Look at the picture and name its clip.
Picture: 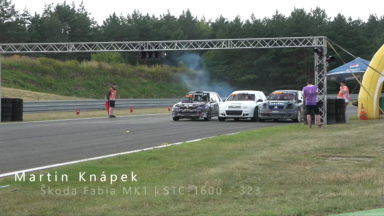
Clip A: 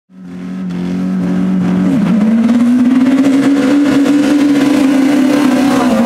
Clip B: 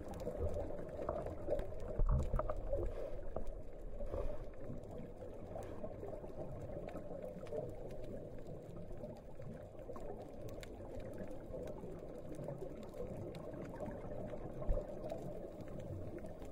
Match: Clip A